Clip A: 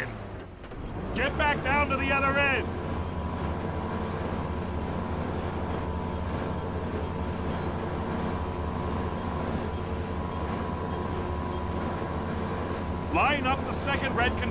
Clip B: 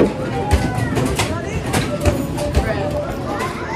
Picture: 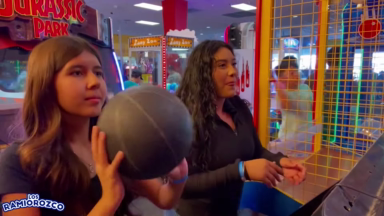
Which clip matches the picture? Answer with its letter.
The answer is B